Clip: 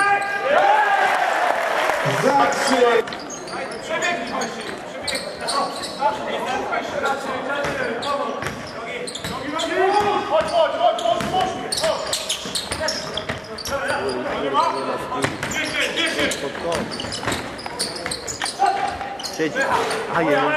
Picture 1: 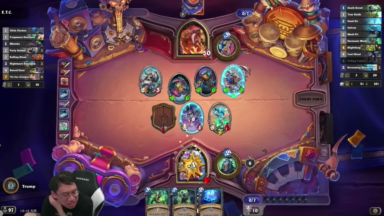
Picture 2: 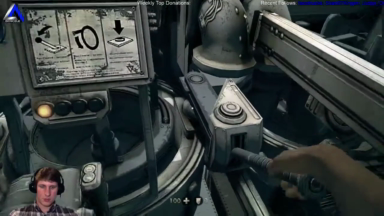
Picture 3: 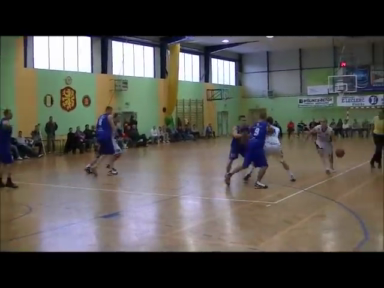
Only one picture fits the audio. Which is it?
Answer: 3